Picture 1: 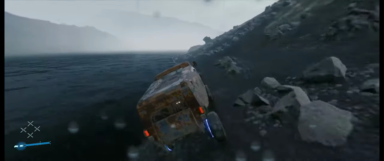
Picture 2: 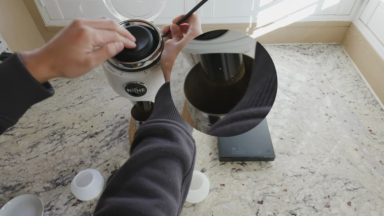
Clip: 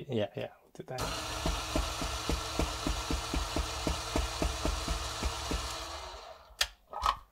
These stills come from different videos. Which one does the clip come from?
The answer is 2